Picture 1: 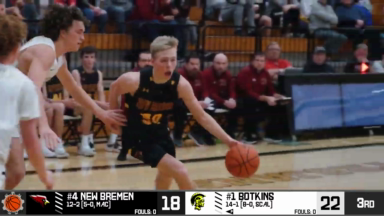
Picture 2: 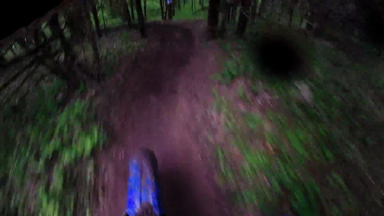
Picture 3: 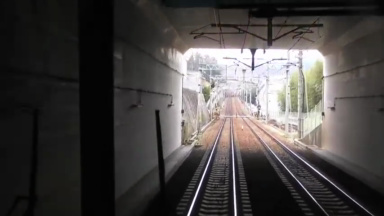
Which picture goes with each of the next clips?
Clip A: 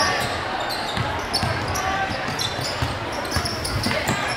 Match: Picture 1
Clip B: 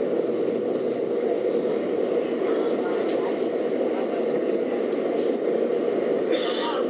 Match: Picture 3